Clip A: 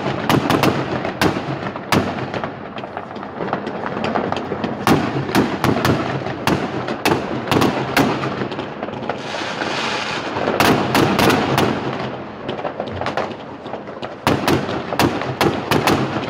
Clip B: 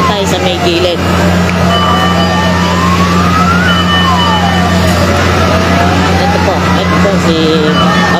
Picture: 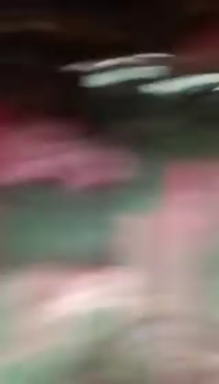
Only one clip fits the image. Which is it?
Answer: B